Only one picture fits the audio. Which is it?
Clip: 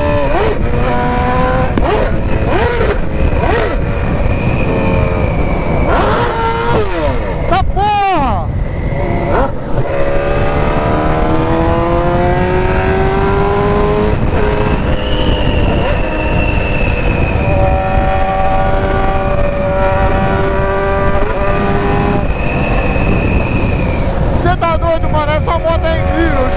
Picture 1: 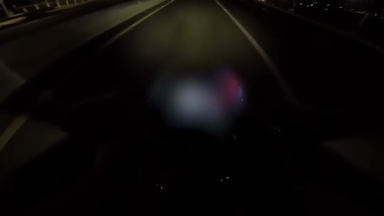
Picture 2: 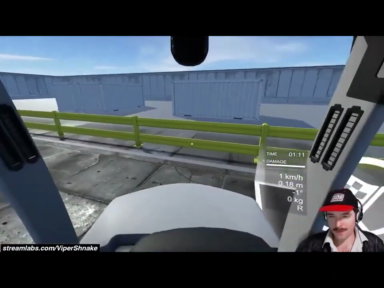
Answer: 1